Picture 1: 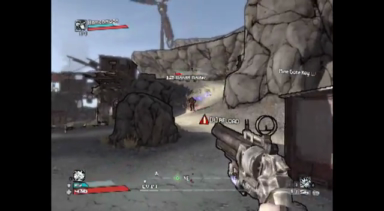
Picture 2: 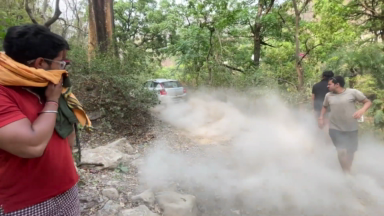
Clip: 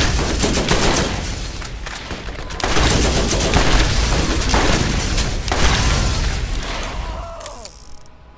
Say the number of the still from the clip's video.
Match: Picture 1